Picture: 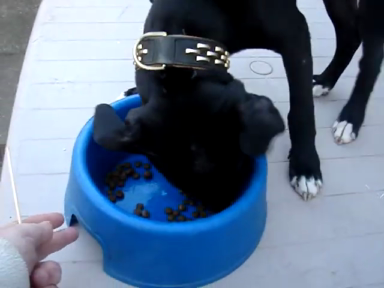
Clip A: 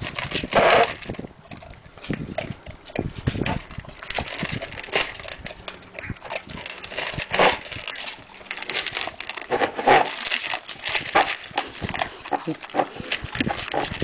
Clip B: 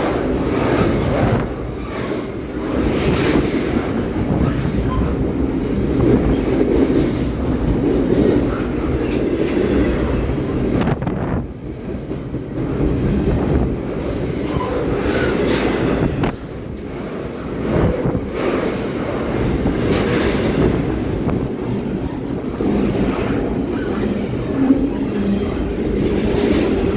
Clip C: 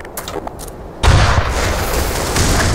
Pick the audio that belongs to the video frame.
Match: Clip A